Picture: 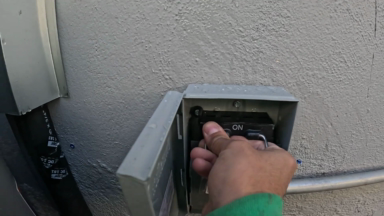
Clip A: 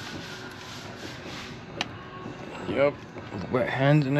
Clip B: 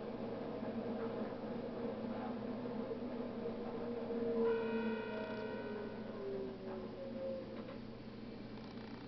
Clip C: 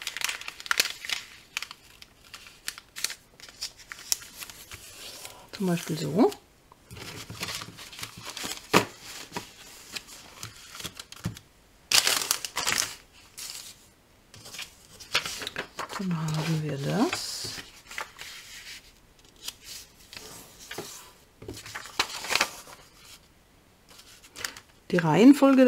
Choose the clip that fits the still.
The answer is A